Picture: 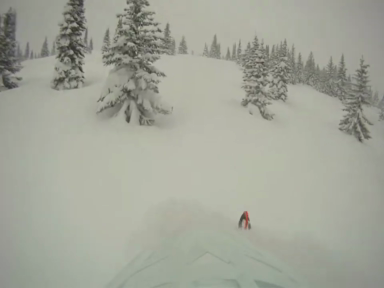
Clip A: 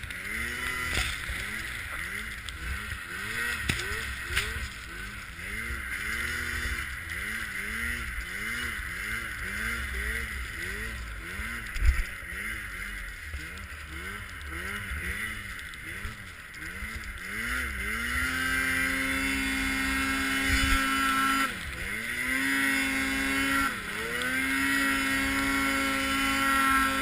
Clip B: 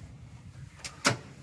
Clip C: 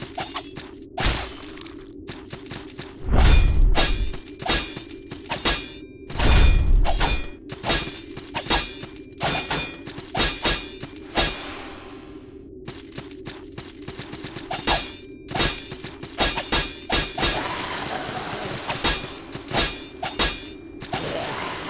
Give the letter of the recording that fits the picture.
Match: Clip A